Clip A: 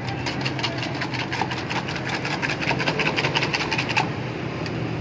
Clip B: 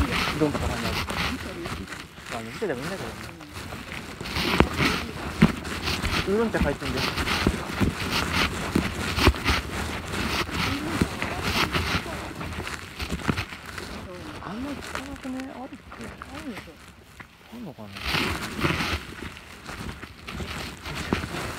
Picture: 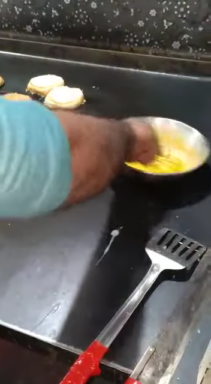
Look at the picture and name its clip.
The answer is A